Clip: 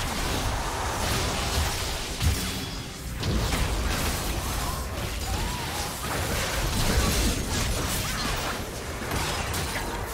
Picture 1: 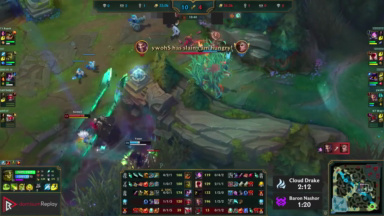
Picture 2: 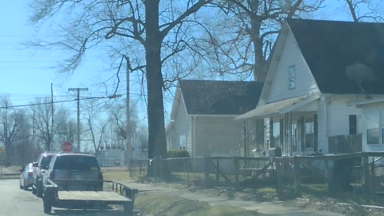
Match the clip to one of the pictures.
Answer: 1